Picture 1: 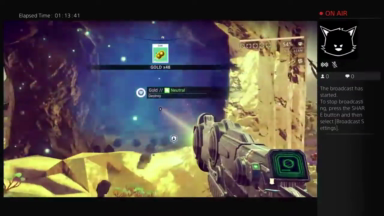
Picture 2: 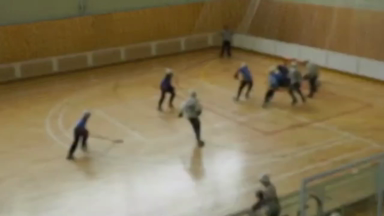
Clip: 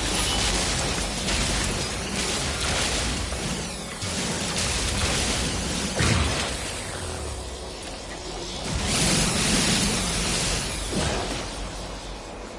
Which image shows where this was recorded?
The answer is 1